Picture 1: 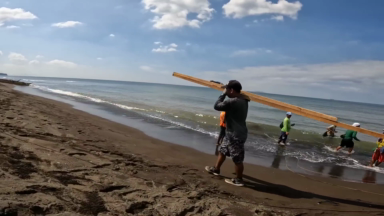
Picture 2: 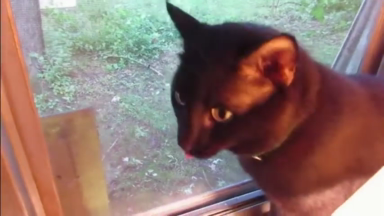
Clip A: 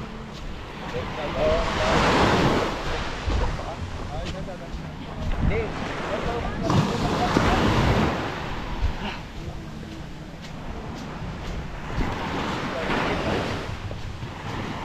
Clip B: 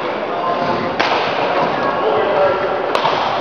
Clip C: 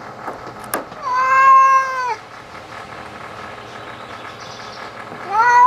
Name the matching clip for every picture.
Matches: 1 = A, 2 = C